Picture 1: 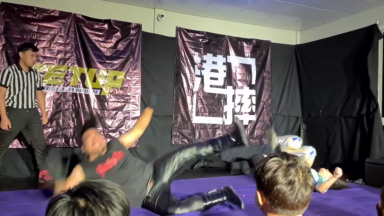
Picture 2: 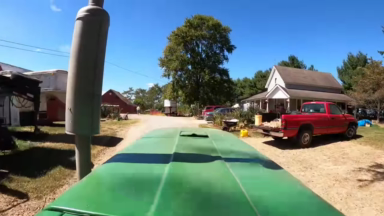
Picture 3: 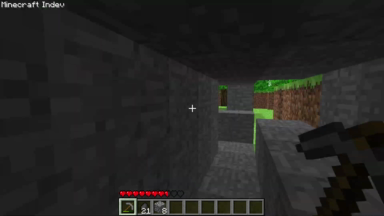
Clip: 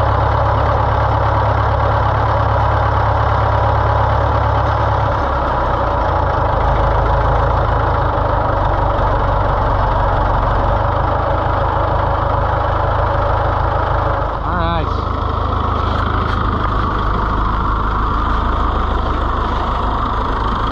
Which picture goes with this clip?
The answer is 2